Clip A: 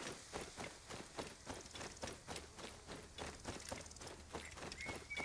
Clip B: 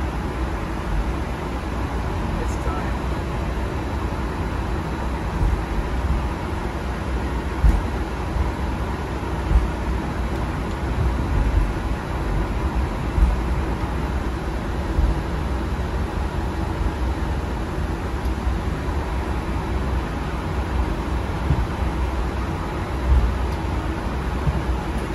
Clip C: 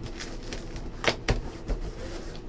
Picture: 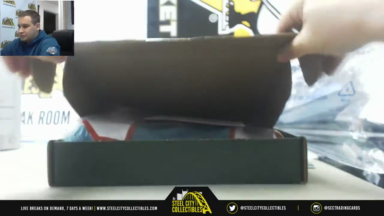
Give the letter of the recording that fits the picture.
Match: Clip C